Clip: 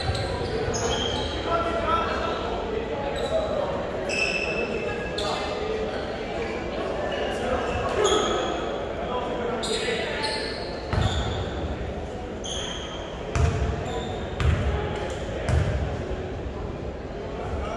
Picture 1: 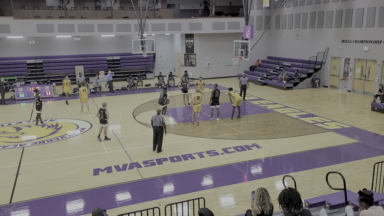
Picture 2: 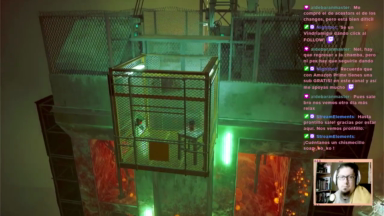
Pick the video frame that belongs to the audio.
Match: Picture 1